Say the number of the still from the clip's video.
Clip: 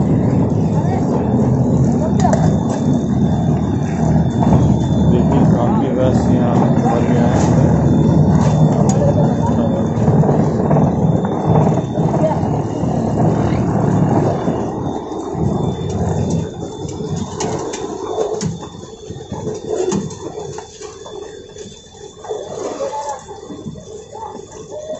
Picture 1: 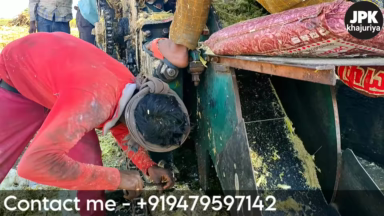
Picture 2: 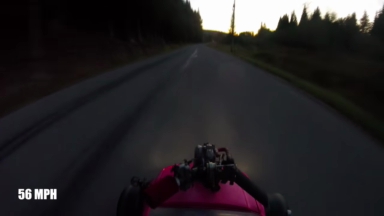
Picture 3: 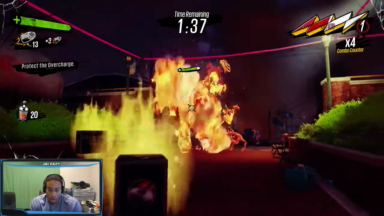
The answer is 1